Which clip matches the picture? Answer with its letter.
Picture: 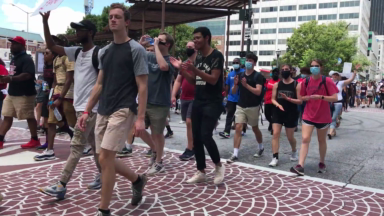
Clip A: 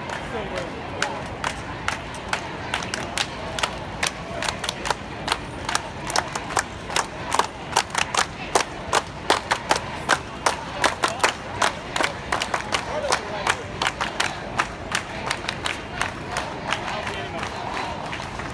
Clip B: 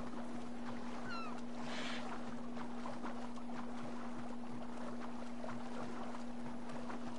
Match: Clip A